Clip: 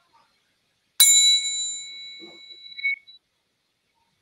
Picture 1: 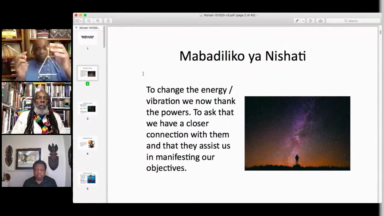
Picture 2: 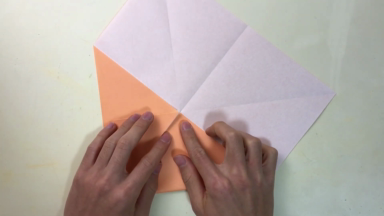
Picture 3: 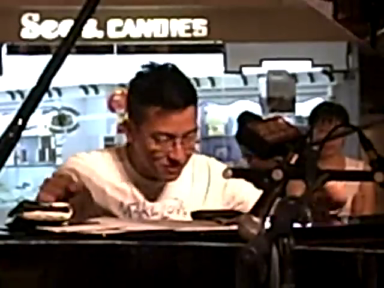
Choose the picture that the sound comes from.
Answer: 1